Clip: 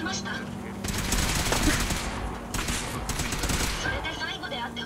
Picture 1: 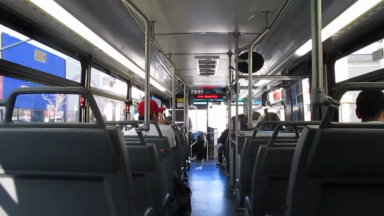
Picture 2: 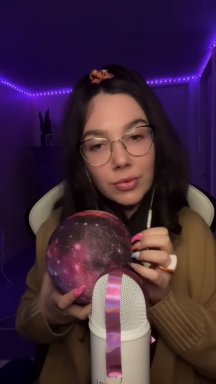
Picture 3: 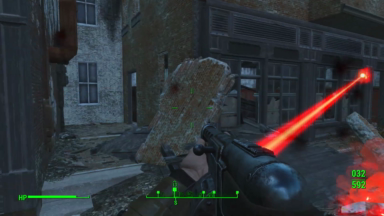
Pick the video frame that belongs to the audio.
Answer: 3